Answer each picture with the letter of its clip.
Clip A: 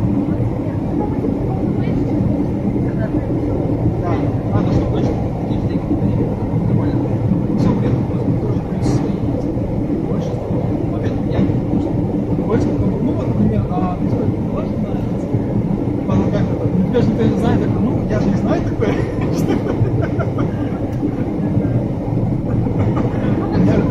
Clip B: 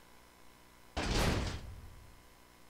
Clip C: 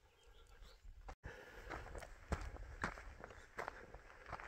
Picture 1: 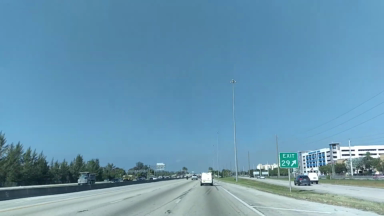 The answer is A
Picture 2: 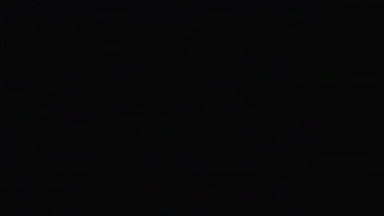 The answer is B